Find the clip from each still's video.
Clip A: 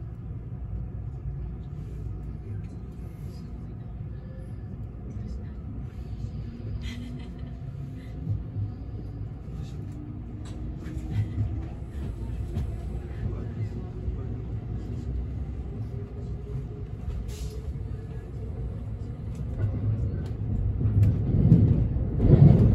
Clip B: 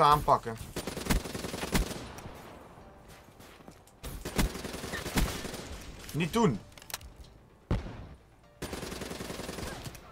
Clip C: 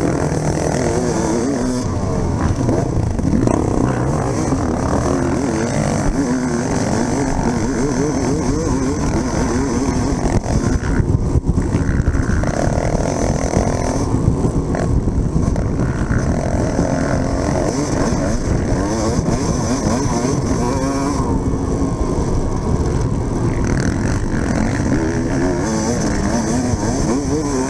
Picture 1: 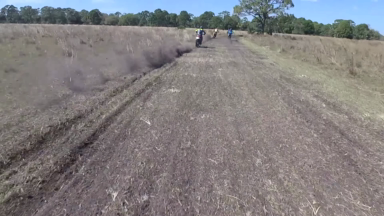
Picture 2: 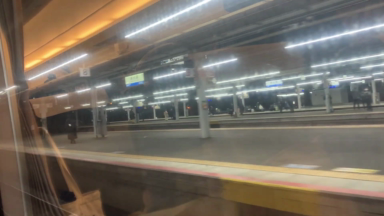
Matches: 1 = C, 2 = A